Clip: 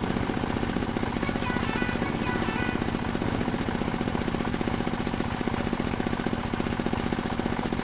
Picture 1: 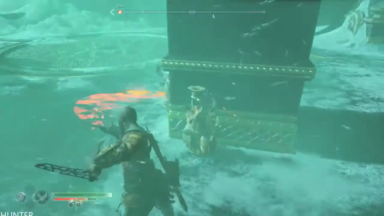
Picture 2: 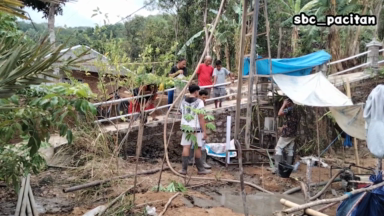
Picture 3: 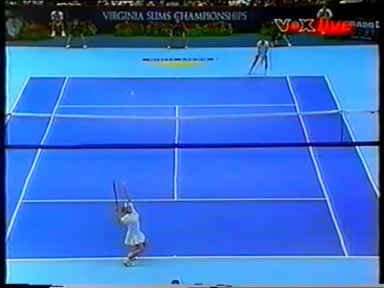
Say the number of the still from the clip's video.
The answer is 2